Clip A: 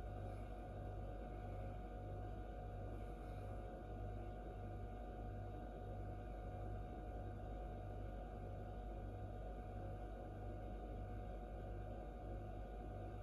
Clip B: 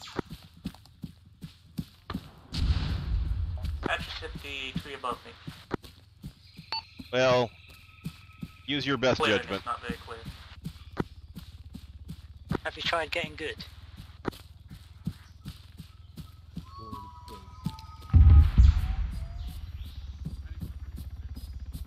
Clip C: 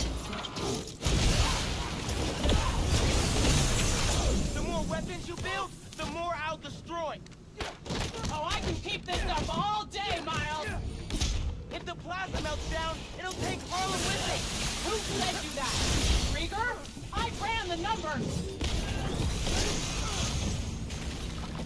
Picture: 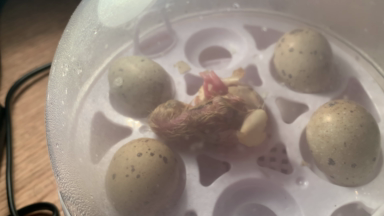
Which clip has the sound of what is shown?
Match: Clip A